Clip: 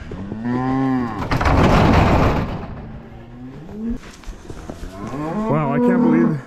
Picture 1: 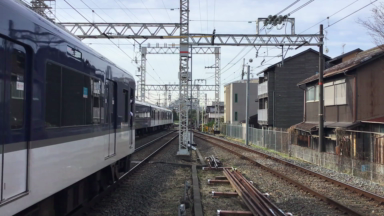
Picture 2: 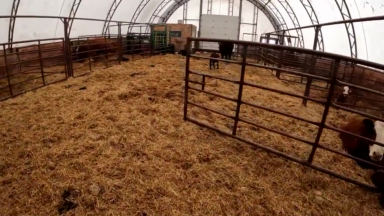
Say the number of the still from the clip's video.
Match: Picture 2